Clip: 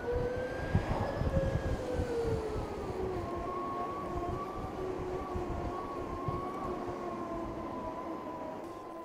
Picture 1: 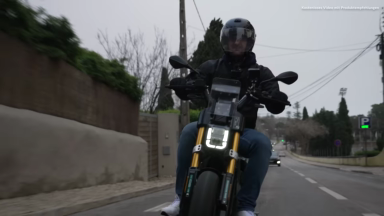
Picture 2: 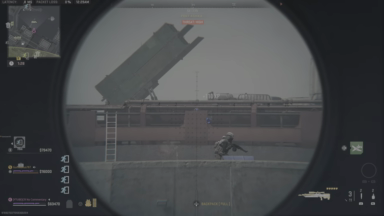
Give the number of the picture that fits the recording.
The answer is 1